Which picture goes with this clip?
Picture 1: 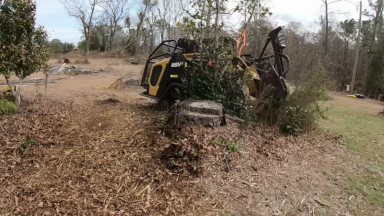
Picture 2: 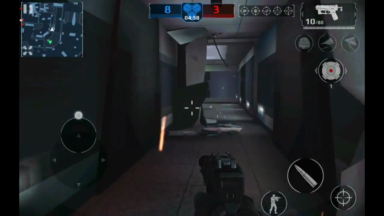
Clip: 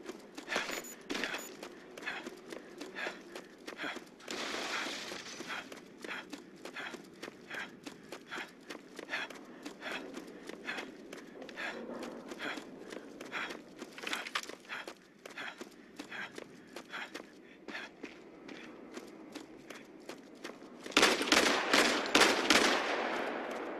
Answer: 2